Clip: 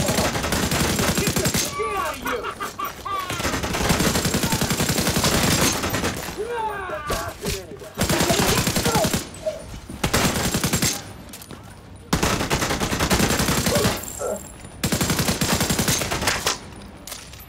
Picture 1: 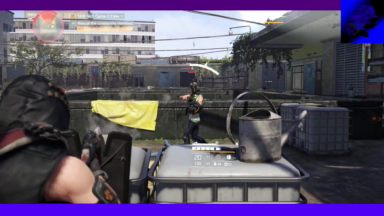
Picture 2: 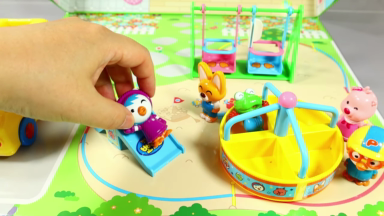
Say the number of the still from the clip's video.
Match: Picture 1